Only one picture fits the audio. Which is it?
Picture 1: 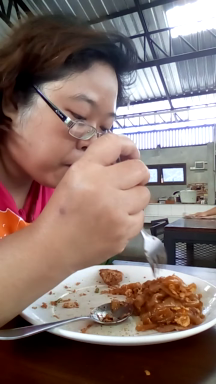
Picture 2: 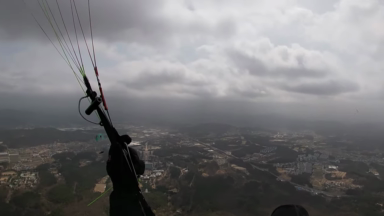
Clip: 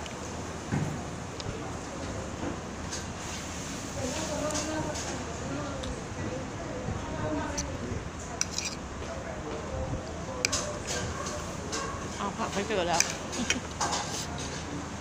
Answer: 1